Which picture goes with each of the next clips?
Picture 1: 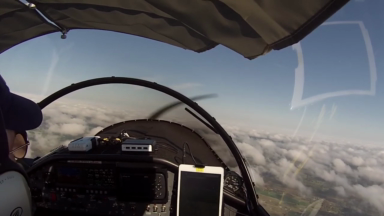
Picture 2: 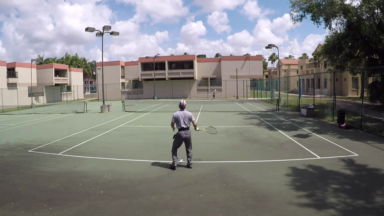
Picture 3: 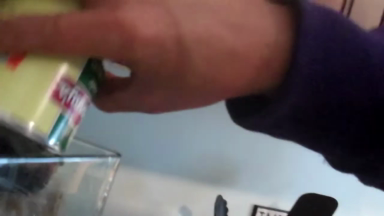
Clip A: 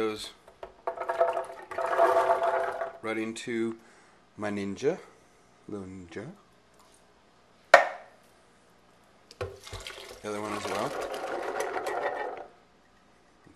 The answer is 3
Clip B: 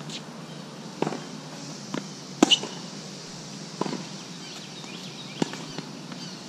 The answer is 2